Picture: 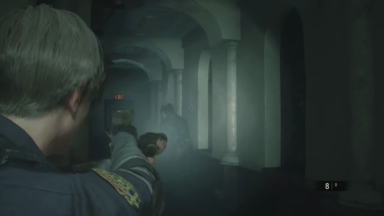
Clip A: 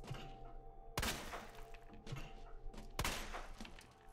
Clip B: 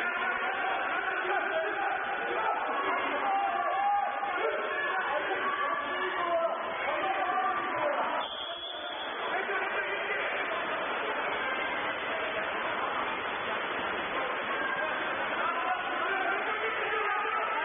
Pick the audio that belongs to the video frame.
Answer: A